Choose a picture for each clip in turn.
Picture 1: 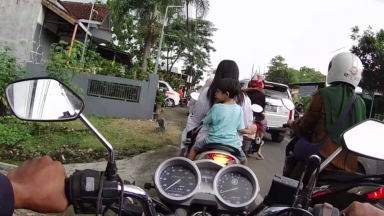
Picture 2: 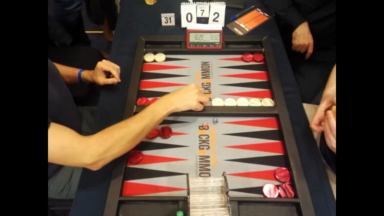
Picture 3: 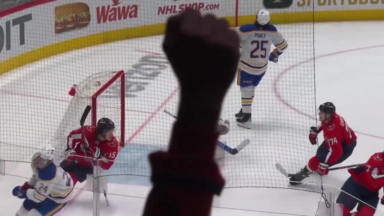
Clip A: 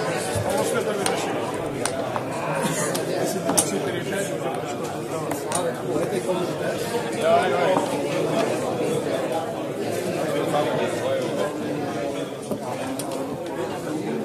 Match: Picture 2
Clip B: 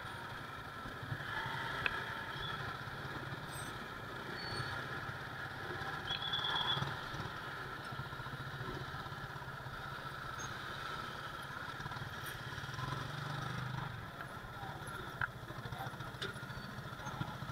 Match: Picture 1